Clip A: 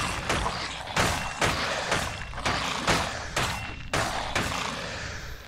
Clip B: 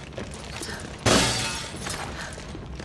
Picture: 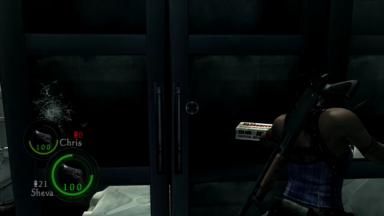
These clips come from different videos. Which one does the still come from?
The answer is B